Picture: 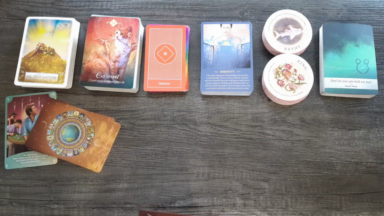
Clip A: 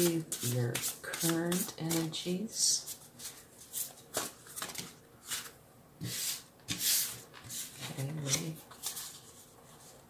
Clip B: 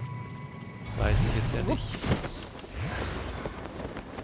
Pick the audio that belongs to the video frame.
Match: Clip A